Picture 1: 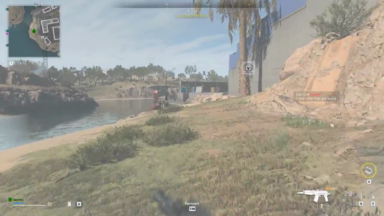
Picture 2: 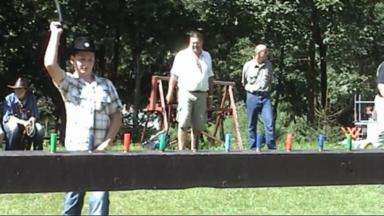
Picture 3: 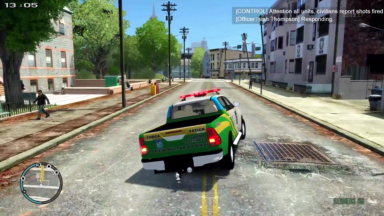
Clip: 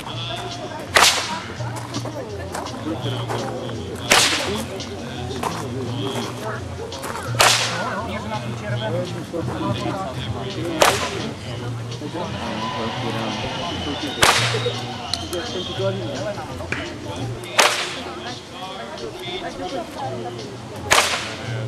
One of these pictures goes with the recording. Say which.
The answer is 2